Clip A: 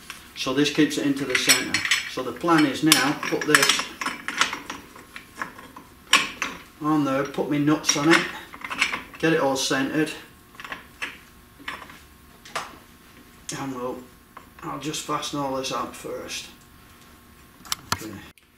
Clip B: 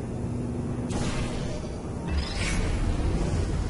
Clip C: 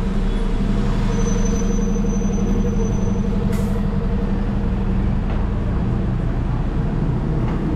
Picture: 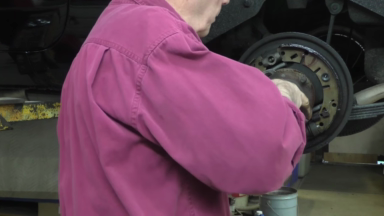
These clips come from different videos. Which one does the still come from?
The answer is A